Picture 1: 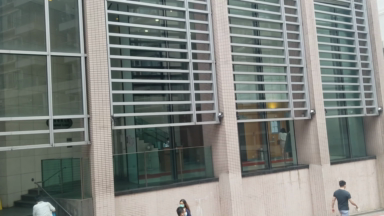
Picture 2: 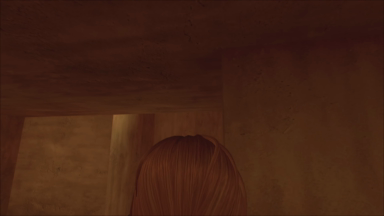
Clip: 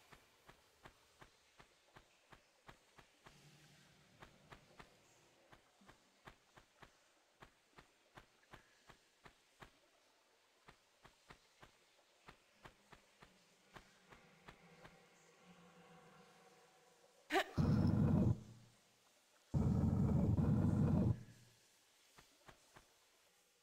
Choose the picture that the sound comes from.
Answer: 2